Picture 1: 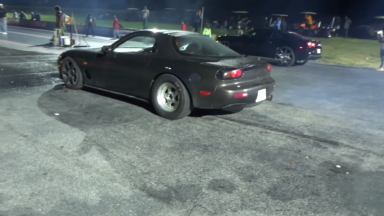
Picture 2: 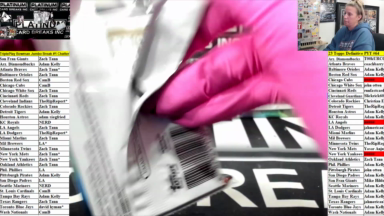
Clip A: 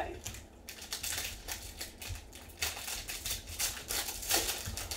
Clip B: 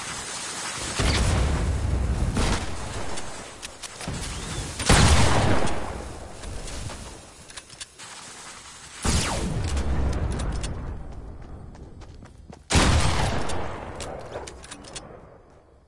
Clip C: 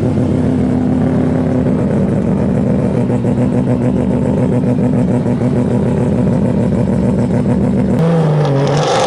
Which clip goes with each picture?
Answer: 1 C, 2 A